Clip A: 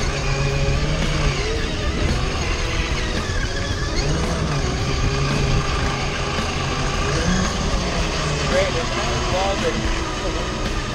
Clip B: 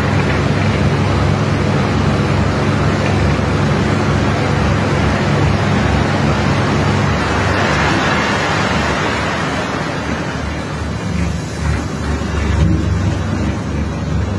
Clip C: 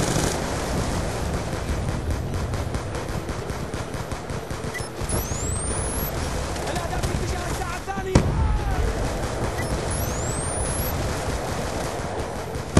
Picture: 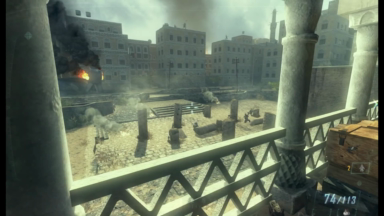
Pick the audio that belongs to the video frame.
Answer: C